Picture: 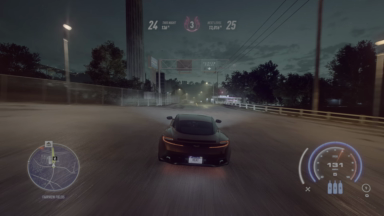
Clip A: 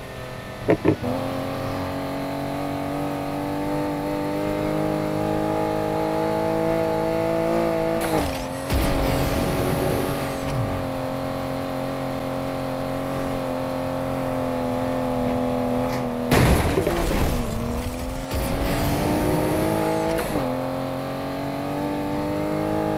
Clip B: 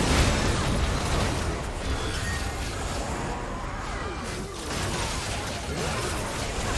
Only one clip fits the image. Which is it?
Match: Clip A